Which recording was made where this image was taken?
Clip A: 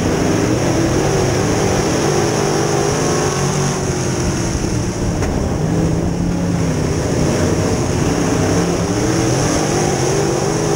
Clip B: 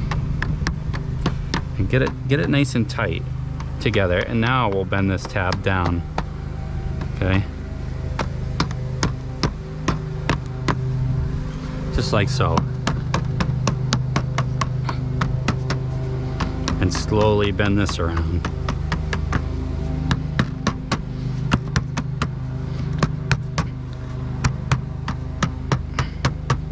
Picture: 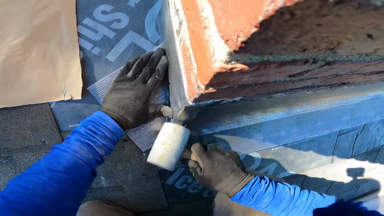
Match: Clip B